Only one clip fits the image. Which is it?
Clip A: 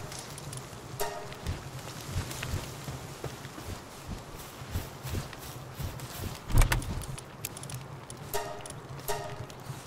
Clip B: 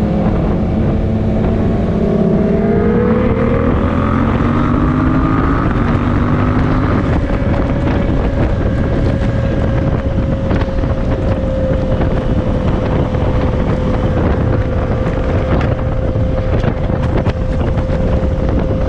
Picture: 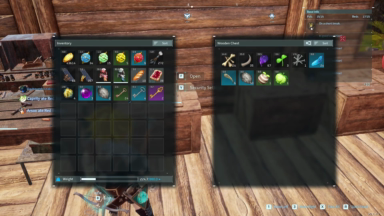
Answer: A